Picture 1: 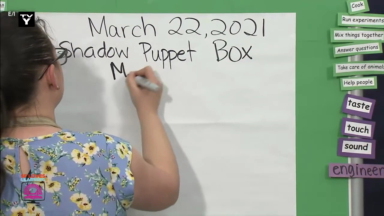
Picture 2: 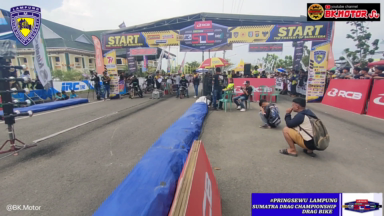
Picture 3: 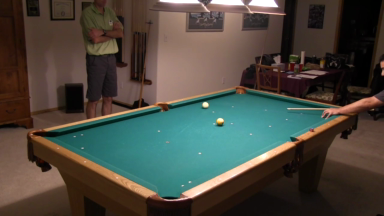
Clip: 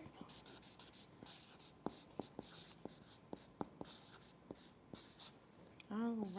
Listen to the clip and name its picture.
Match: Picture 1